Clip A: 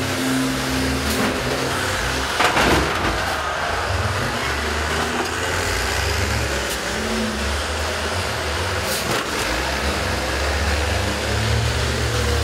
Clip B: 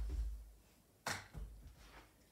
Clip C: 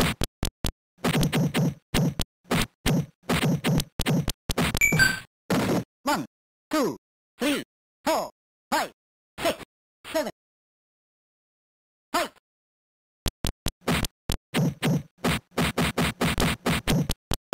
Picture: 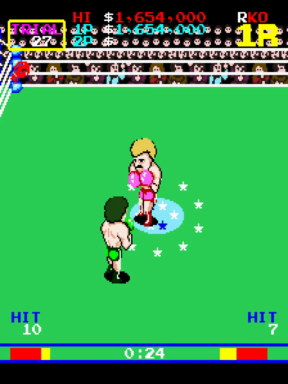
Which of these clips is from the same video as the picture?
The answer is C